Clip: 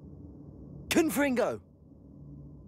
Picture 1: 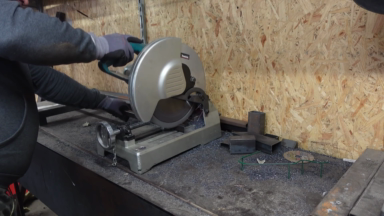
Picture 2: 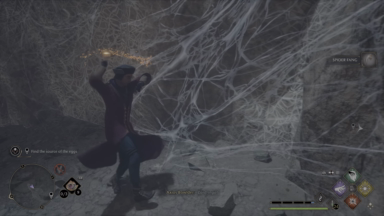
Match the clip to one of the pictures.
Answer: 2